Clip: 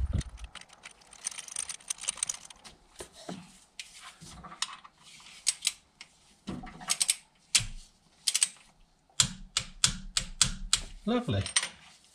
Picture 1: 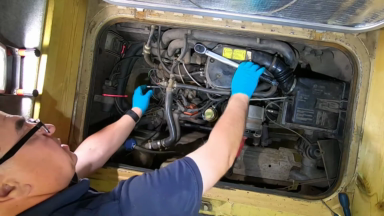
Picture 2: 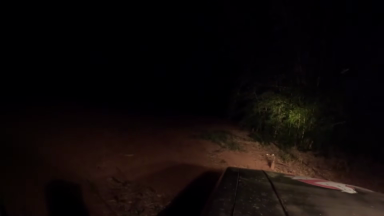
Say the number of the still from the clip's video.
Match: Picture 1